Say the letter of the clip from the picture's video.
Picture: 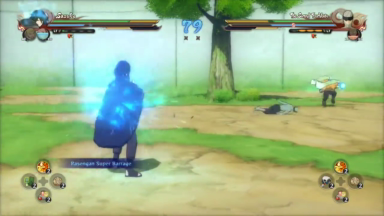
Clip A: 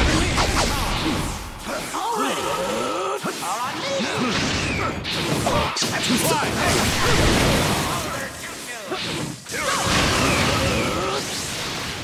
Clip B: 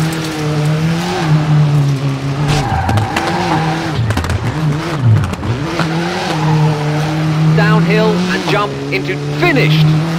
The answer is A